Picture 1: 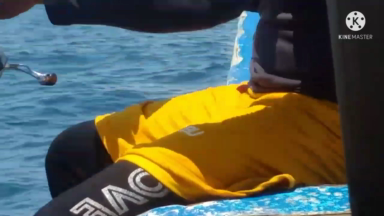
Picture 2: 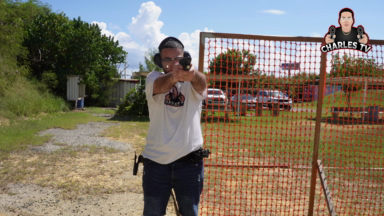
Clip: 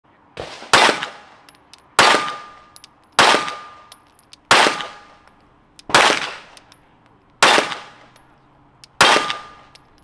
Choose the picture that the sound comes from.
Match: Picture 2